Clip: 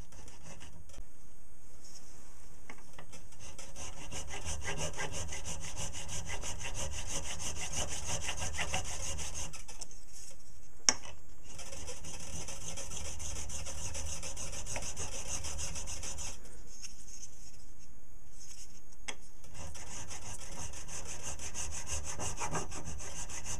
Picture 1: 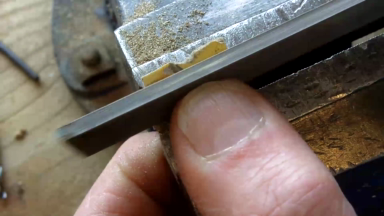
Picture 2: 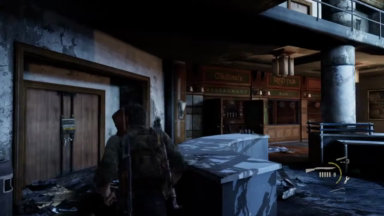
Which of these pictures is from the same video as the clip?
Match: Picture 1